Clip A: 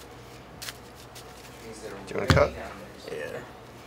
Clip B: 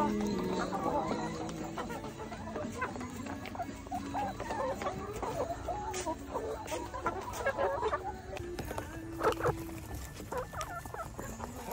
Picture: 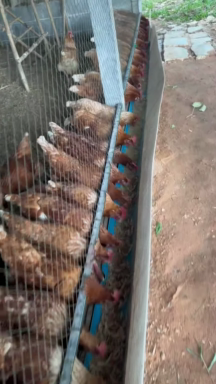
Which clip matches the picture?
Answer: B